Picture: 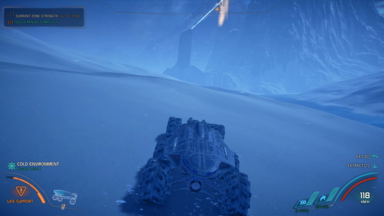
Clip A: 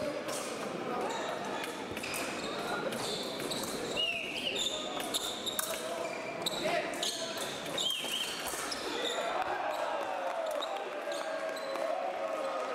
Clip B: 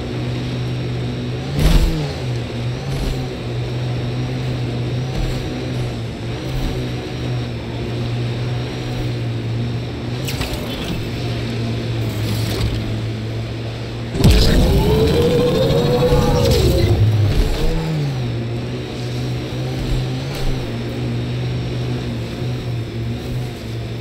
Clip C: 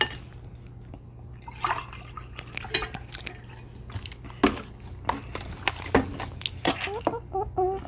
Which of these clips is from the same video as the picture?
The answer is B